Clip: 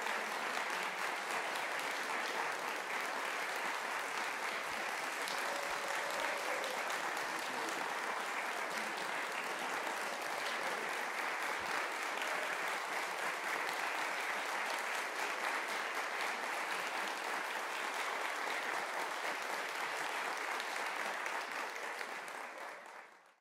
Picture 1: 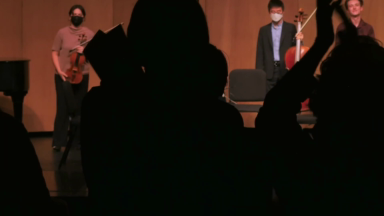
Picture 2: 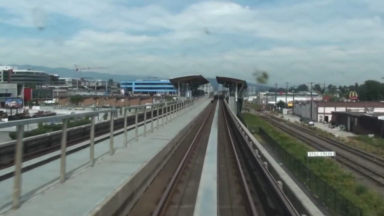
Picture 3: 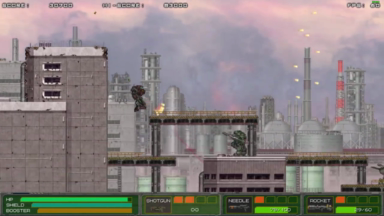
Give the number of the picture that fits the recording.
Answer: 1